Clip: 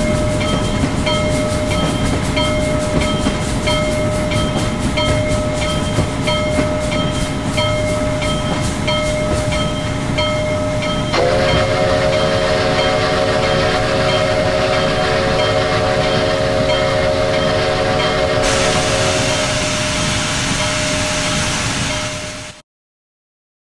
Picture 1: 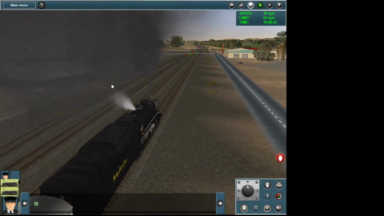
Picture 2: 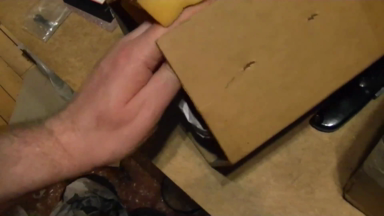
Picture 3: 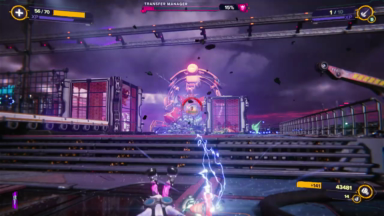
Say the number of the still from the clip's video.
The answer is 1